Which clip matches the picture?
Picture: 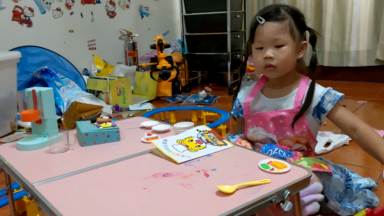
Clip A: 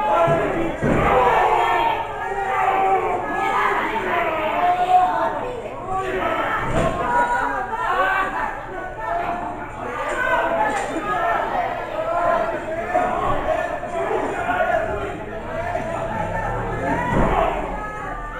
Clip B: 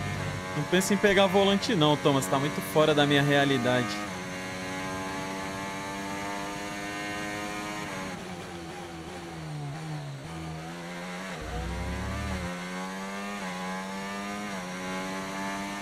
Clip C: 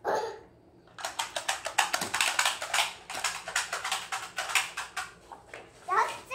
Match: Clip C